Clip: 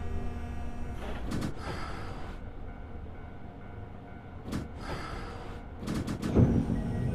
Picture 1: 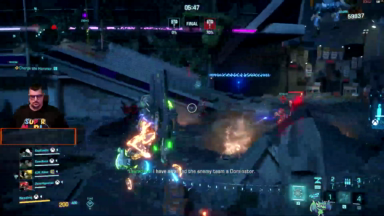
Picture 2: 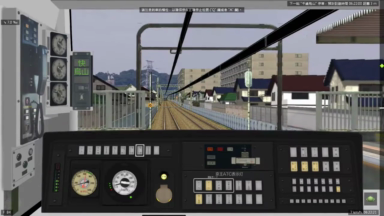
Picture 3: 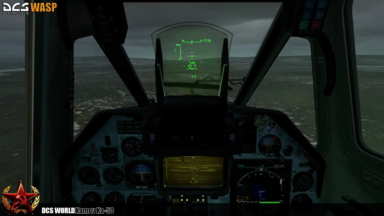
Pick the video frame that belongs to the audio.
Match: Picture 2